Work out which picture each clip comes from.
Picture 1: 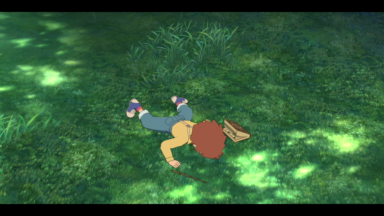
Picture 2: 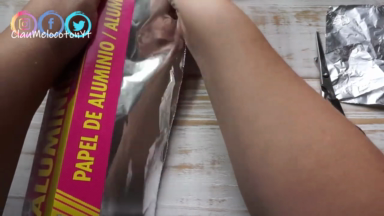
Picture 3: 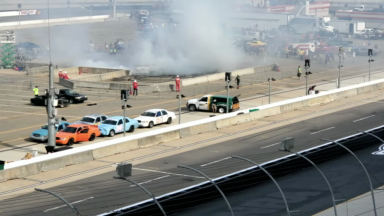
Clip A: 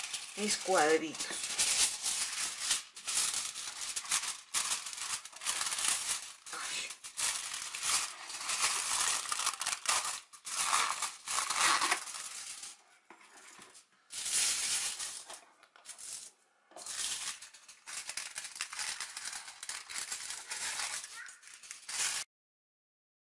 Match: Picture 2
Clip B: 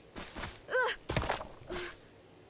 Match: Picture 1